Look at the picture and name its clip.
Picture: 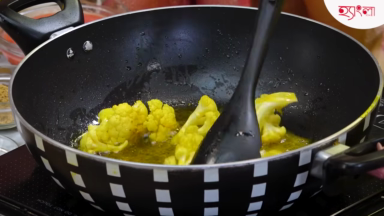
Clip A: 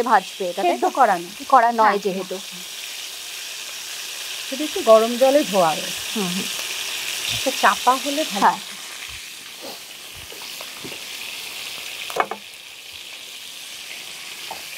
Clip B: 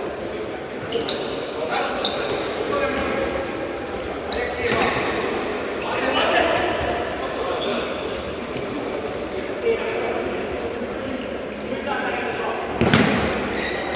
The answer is A